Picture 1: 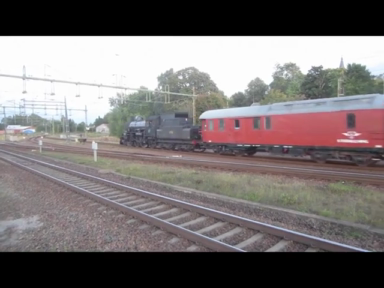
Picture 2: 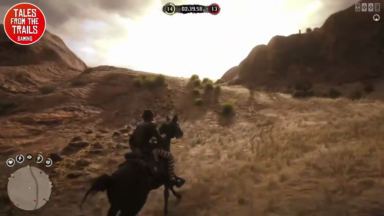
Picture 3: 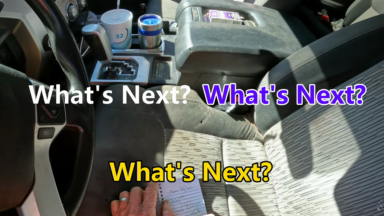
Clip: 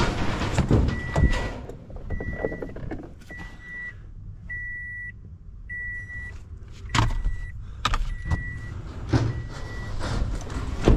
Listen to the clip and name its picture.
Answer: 3